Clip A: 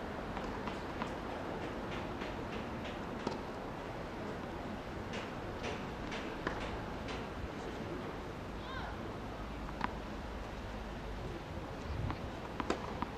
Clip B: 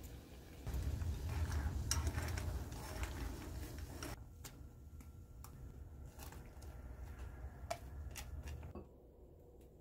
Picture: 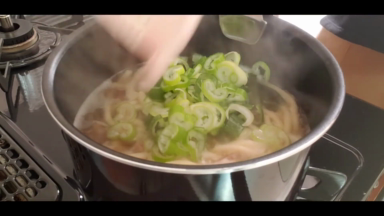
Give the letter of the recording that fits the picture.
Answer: B